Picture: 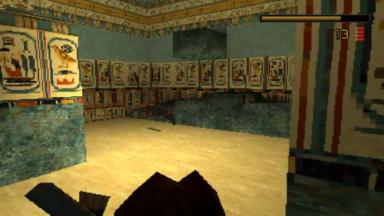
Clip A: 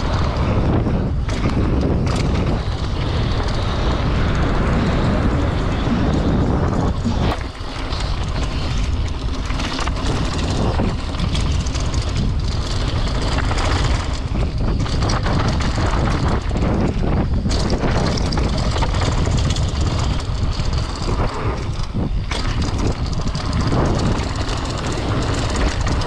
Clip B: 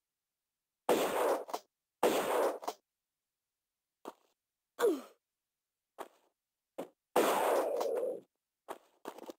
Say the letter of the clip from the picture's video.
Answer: B